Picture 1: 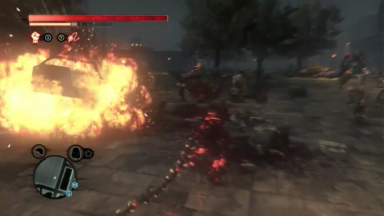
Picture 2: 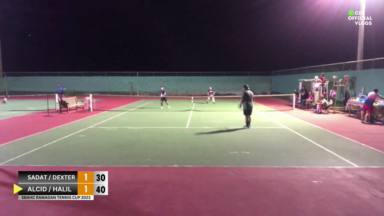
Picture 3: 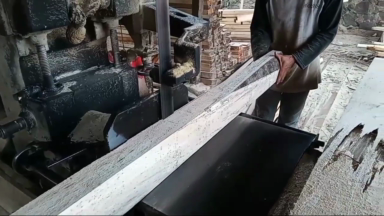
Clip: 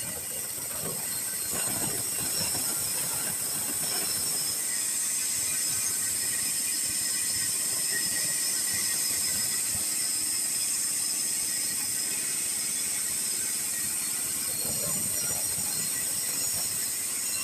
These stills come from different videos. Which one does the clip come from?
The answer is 3